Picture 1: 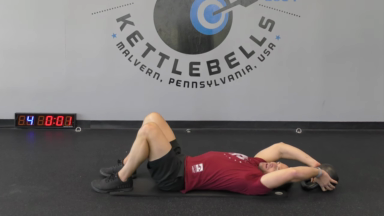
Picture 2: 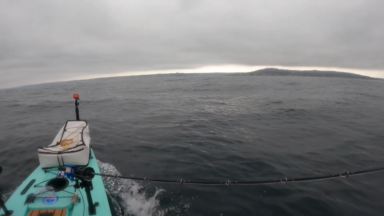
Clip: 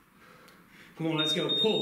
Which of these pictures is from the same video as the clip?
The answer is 1